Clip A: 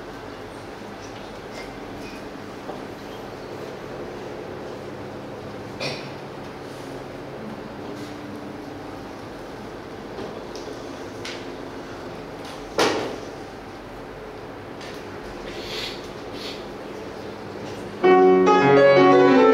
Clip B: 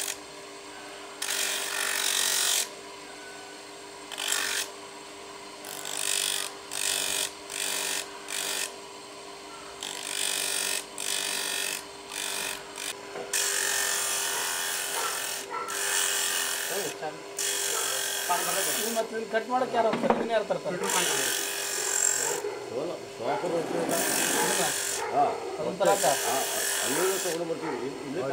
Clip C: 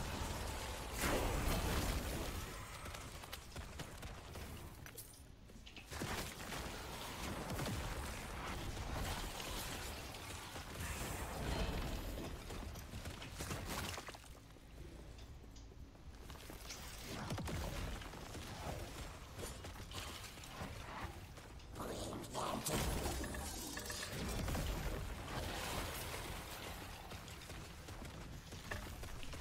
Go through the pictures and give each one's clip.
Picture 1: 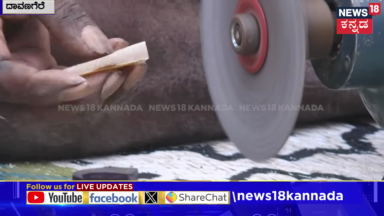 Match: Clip B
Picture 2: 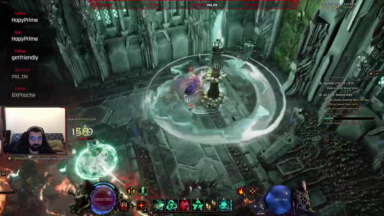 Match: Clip C